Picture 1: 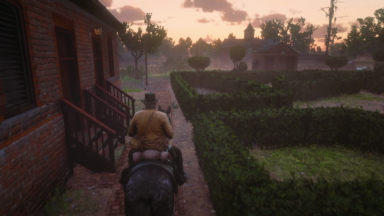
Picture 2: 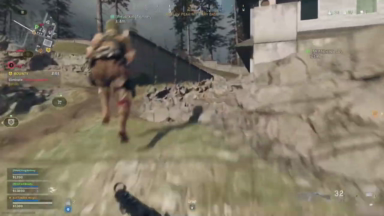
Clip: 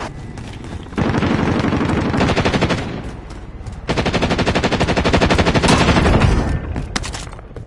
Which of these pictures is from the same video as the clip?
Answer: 2